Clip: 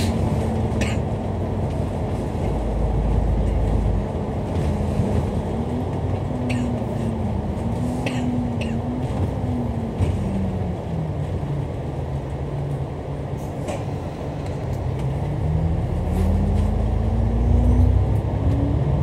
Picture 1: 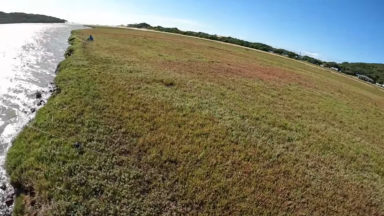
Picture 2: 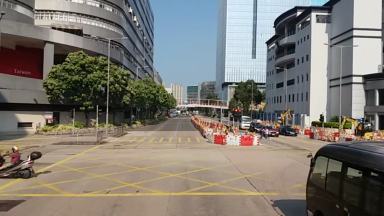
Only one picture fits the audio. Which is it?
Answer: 2